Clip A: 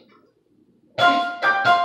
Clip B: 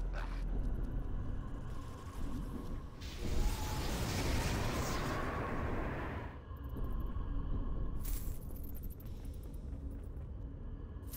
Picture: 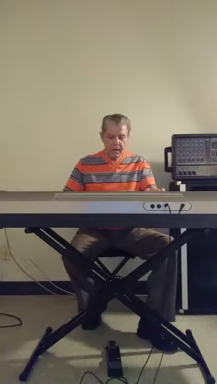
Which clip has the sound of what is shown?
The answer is A